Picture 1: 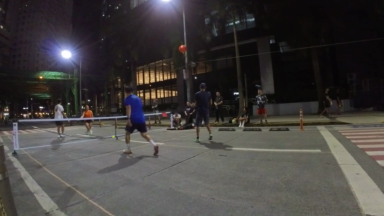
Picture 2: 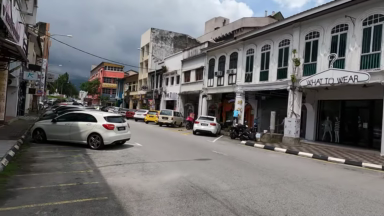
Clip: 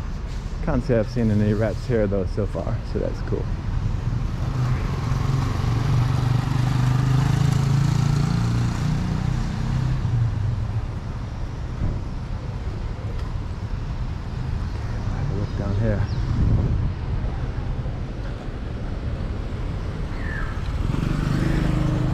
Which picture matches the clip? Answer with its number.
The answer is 2